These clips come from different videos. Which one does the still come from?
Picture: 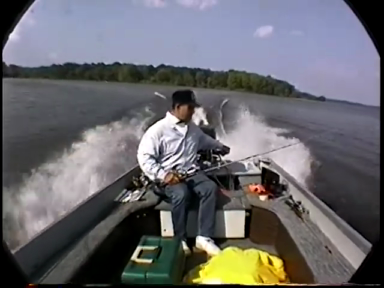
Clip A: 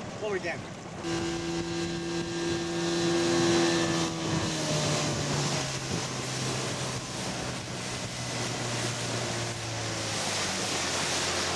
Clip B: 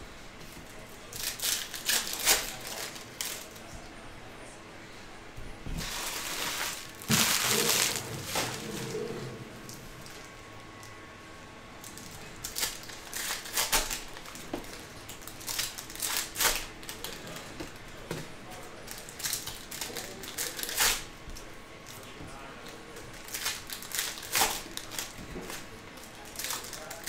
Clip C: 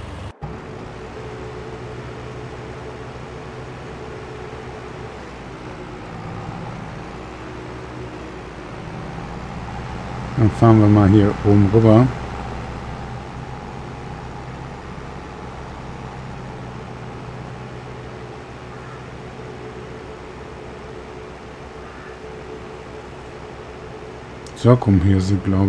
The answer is A